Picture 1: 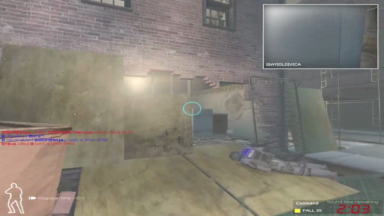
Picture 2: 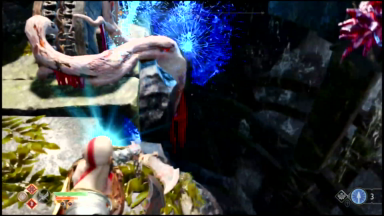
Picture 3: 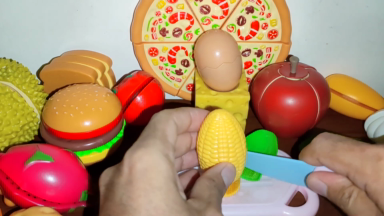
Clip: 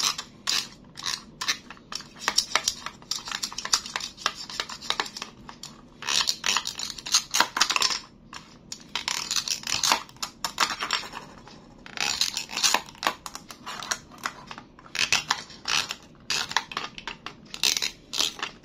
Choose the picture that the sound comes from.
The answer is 3